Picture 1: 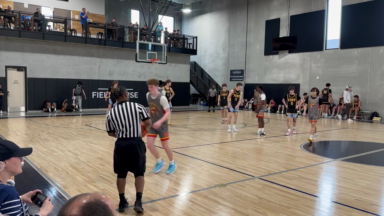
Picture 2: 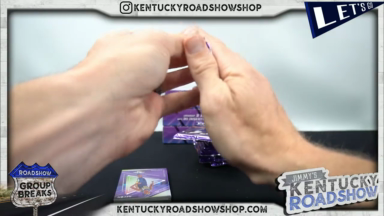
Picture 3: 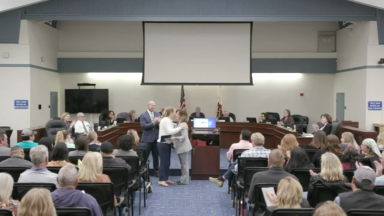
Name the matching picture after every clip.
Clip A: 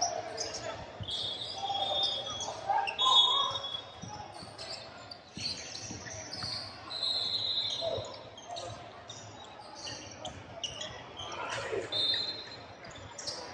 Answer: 1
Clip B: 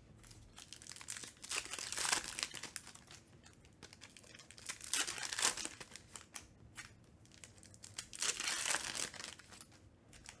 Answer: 2